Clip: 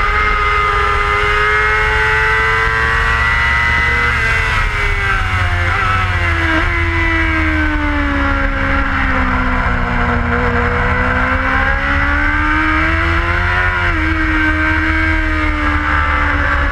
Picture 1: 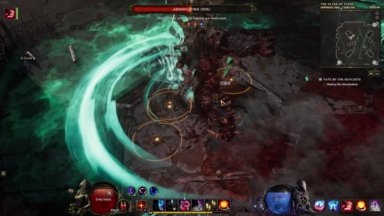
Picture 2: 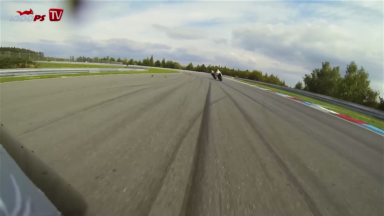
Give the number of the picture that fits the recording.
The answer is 2